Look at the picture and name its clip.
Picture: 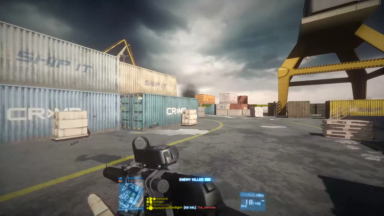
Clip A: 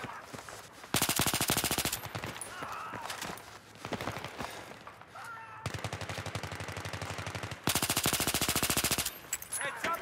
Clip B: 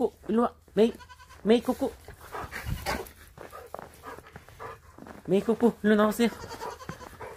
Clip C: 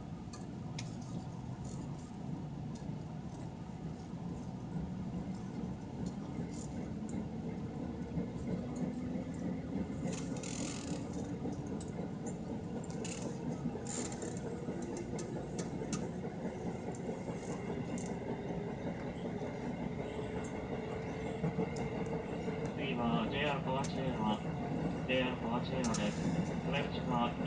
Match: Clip A